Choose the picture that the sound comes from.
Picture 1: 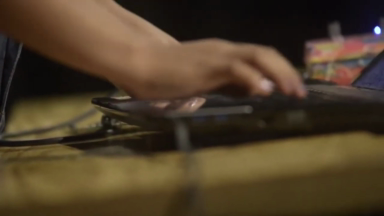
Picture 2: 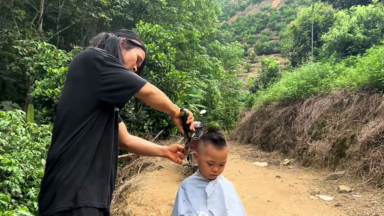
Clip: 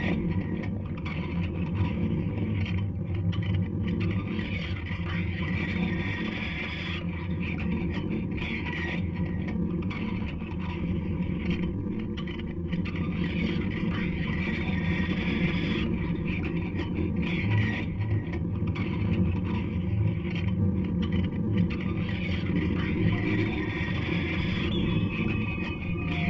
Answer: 1